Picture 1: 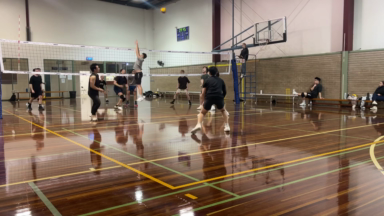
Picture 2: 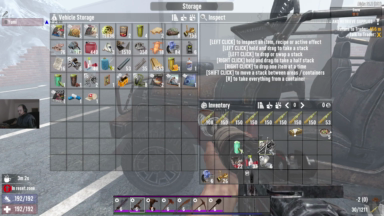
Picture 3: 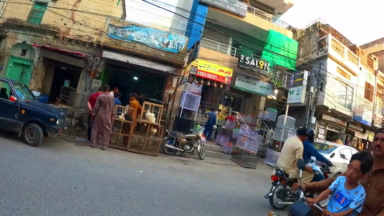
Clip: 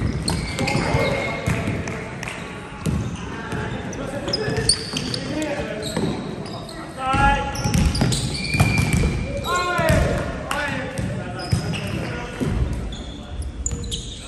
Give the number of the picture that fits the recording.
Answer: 1